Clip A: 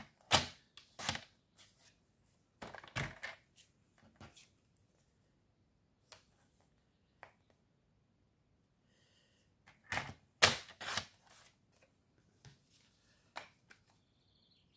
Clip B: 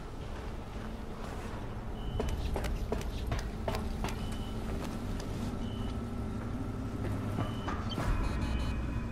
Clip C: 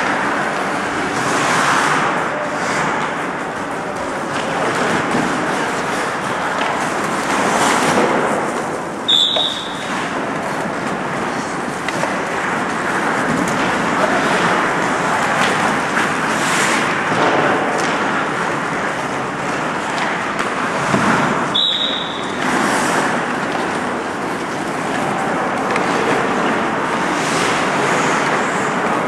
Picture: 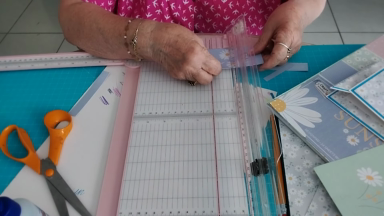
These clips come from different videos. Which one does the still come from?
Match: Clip A